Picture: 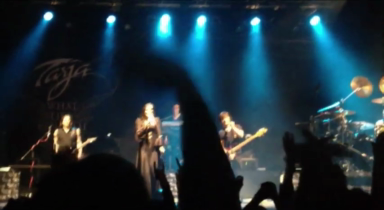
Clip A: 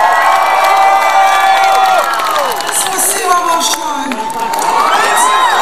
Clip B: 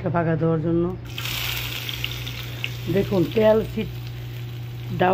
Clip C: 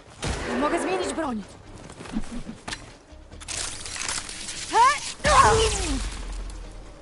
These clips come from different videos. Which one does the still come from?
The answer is A